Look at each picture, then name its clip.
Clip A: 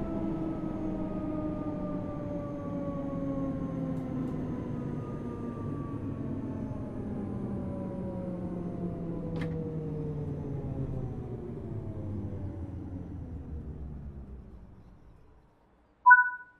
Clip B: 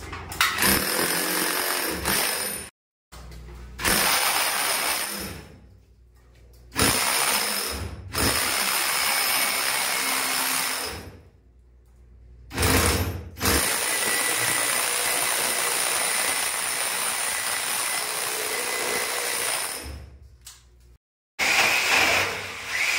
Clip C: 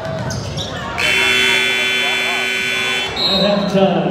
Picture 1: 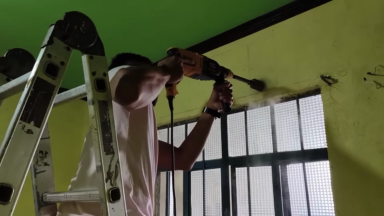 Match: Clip B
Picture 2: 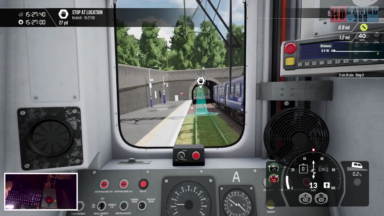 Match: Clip A